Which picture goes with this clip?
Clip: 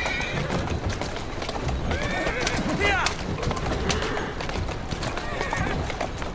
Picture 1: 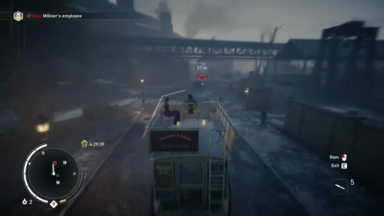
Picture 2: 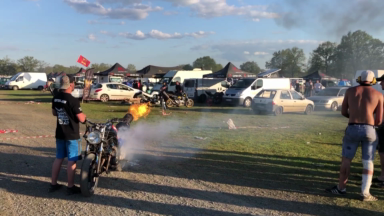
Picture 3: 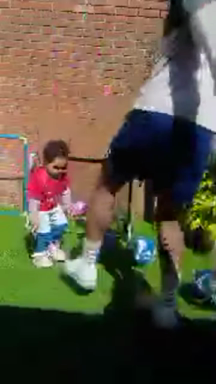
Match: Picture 1